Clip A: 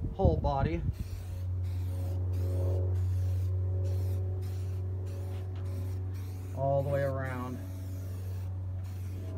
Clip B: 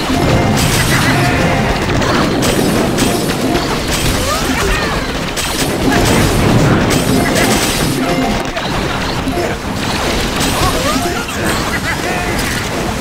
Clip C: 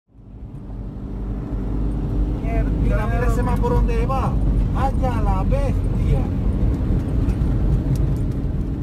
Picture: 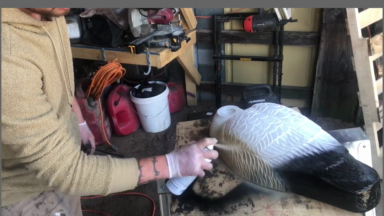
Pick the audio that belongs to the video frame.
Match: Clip A